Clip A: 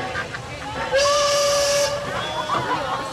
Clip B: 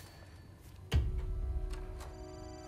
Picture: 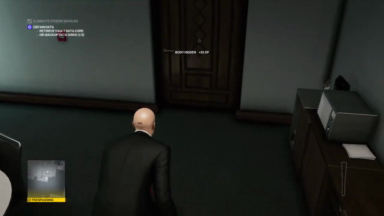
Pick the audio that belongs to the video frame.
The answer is B